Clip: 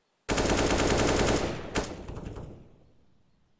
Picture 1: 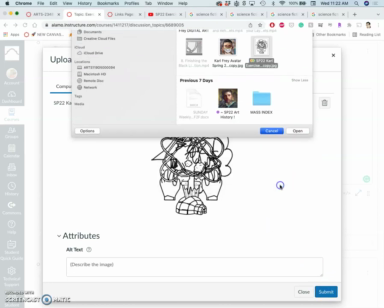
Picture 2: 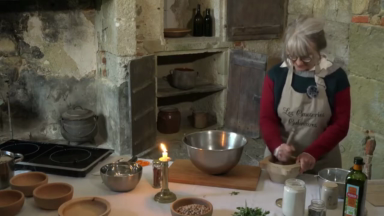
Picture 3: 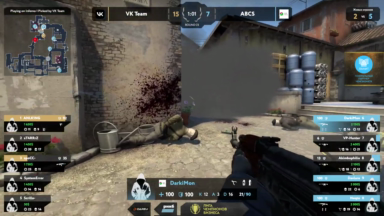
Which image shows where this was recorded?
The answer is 3